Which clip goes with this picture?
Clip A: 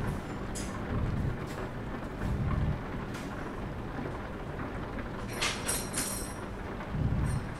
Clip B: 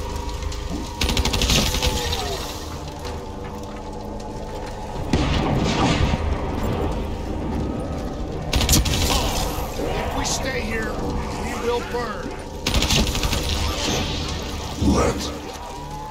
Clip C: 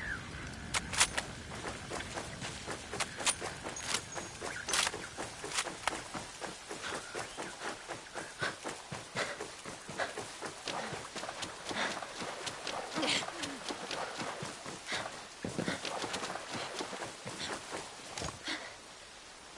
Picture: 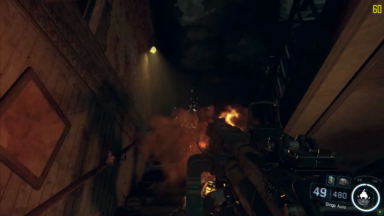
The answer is B